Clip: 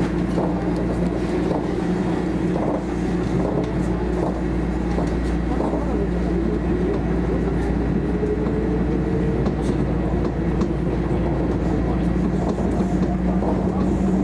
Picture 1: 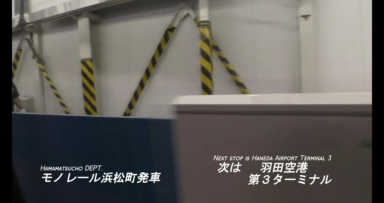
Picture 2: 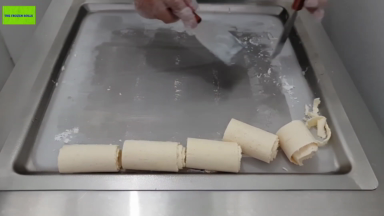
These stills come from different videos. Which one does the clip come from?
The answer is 1